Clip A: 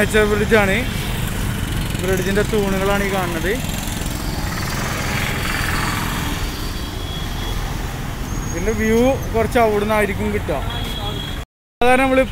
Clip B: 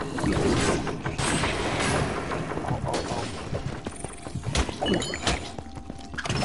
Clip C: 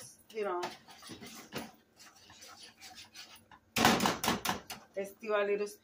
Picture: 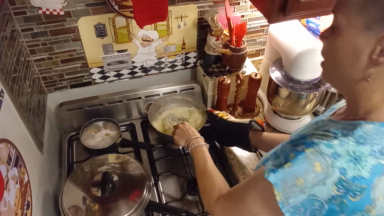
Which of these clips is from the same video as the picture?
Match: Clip C